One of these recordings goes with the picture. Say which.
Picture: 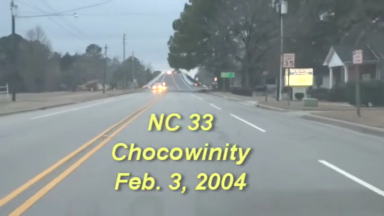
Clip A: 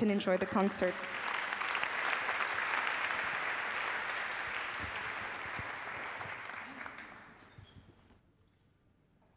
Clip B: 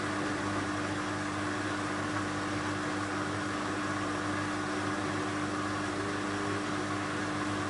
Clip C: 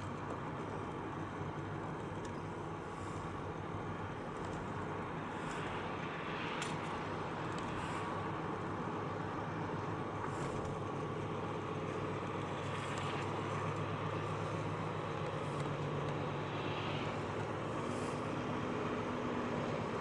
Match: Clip C